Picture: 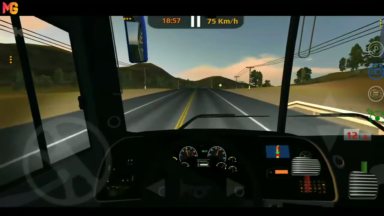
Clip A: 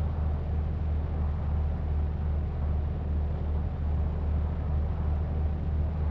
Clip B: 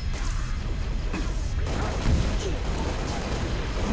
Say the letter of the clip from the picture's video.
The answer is A